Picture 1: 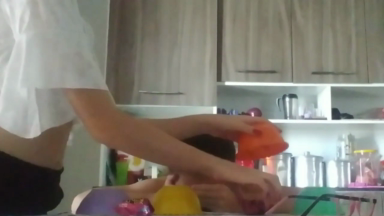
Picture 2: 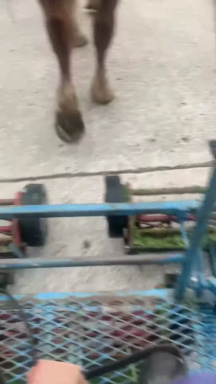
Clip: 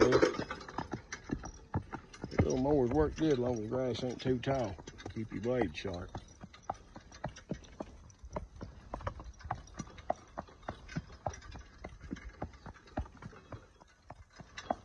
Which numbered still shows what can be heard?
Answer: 2